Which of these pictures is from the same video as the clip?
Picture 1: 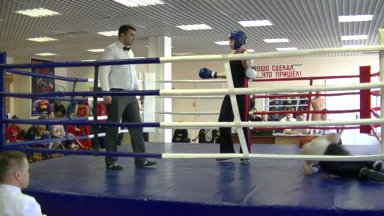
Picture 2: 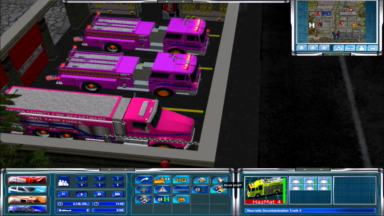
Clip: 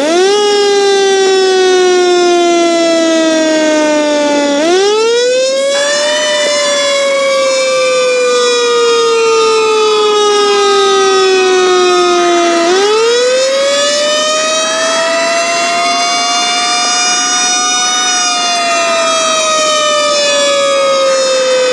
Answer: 2